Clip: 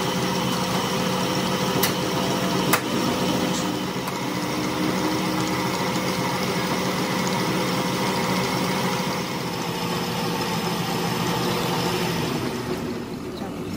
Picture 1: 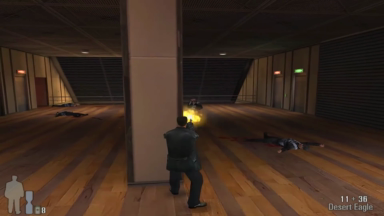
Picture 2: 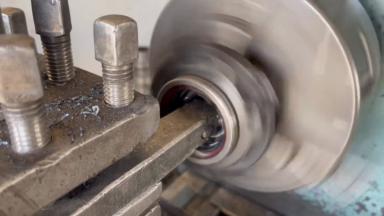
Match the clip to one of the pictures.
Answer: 2